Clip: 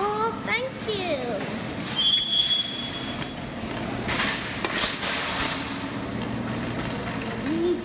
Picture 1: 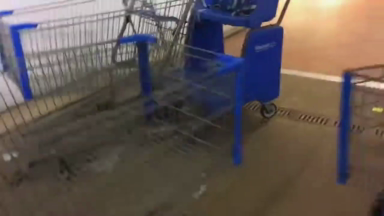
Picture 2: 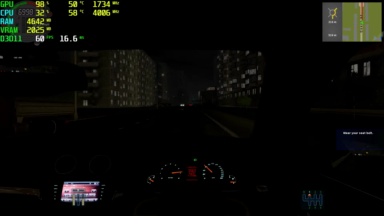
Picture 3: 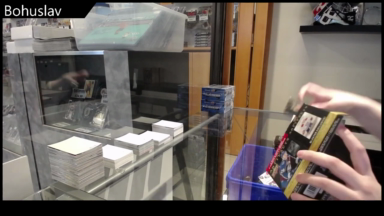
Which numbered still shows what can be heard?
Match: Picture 1